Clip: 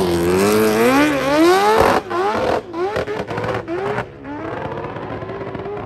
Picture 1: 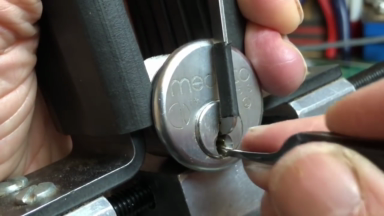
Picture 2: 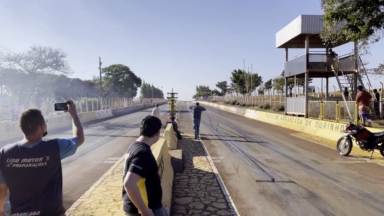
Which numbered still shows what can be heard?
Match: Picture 2